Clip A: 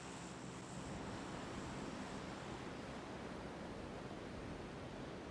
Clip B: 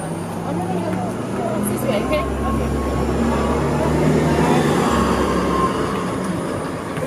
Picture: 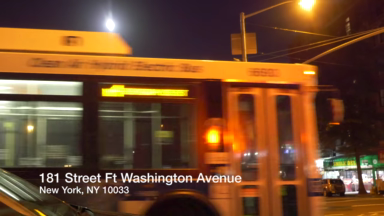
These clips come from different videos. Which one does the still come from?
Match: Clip B